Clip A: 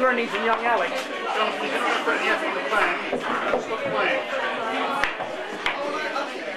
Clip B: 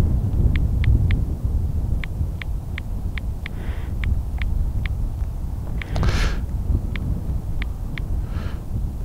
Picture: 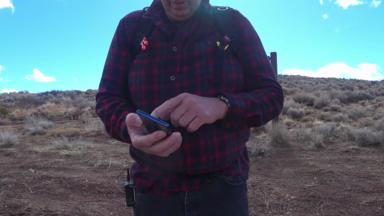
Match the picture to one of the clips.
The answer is B